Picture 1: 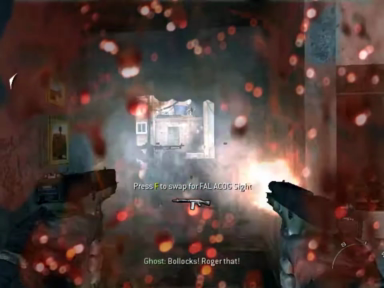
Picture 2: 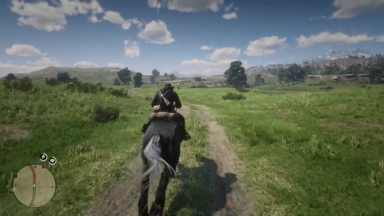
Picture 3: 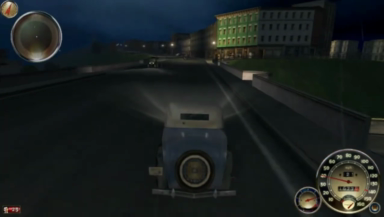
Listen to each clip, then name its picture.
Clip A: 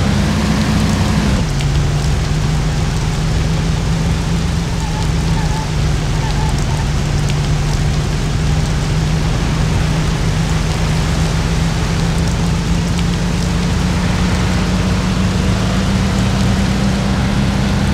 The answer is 3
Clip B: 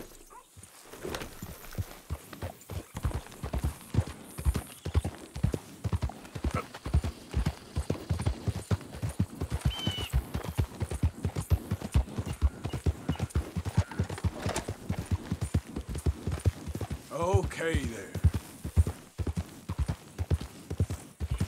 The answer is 2